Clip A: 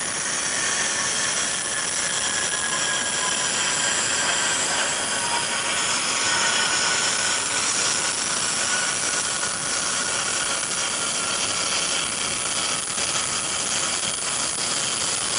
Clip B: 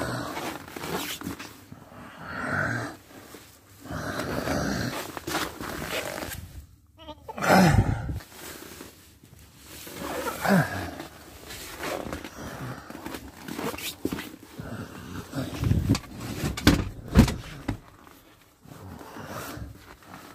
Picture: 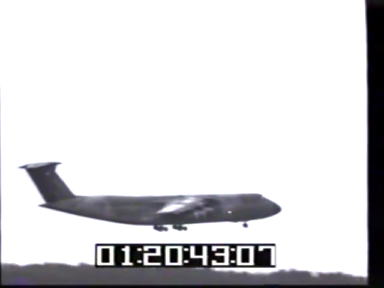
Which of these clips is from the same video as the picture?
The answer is A